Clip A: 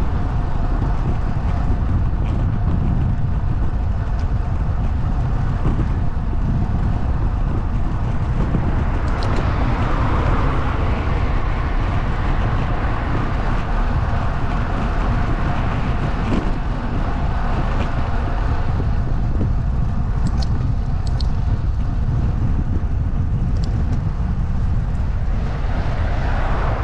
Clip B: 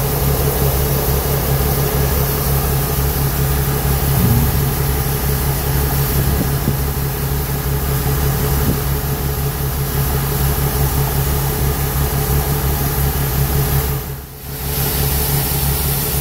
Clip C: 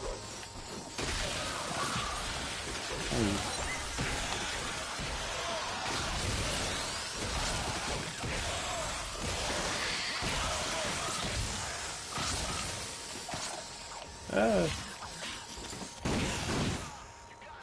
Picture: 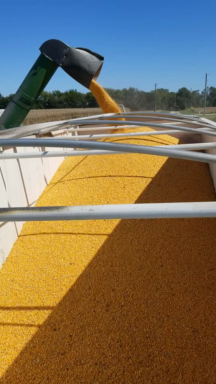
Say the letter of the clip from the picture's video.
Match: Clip B